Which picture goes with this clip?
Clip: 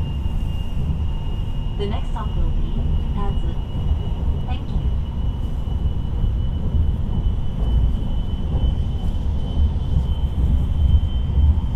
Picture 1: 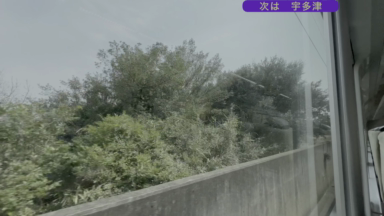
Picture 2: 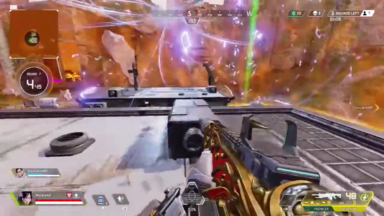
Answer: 1